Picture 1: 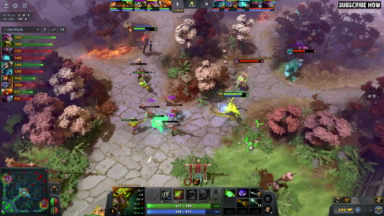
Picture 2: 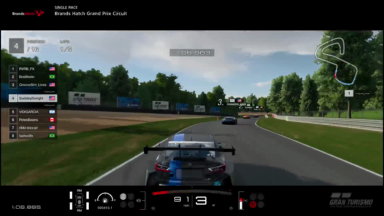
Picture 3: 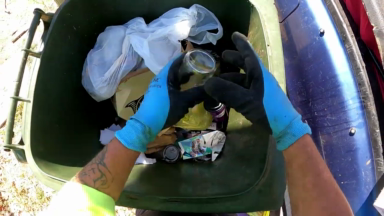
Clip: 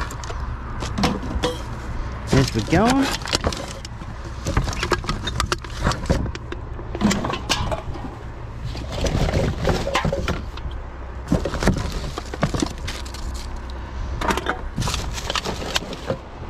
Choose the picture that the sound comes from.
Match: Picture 3